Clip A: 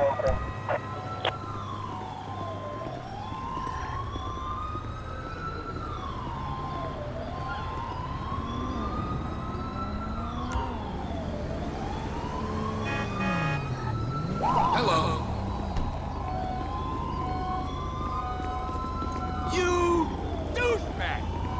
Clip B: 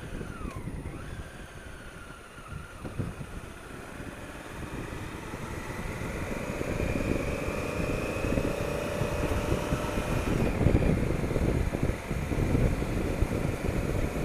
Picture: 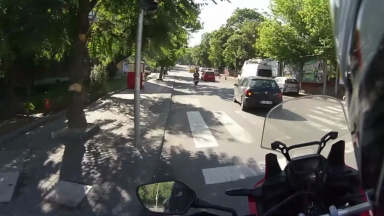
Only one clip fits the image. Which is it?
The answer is B